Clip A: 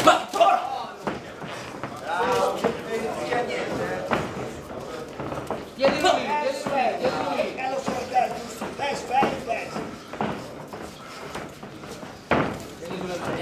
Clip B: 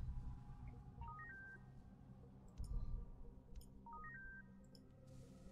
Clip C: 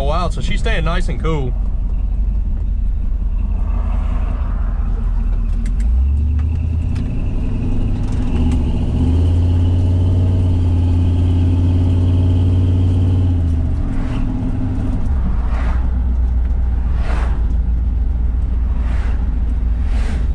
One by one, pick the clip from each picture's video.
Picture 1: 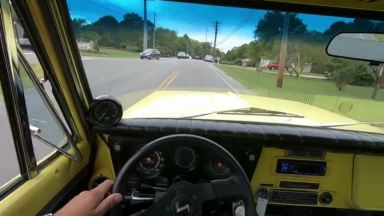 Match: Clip C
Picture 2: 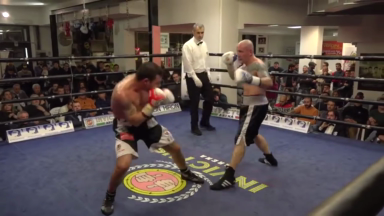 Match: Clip A